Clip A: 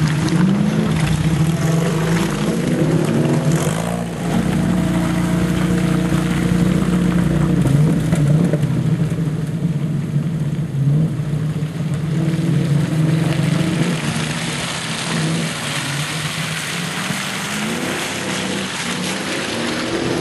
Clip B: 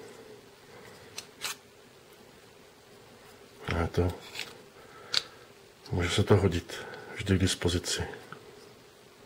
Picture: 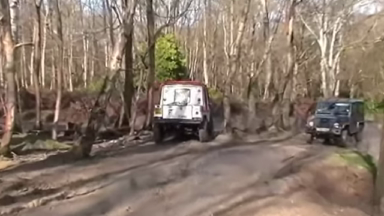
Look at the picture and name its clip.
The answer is A